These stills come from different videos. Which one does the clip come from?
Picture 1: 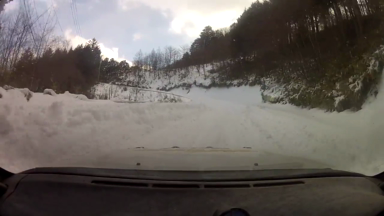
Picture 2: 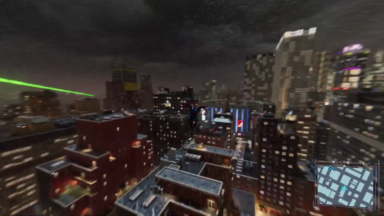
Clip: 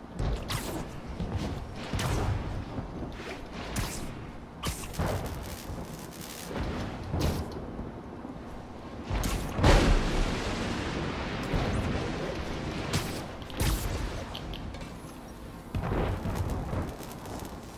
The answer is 2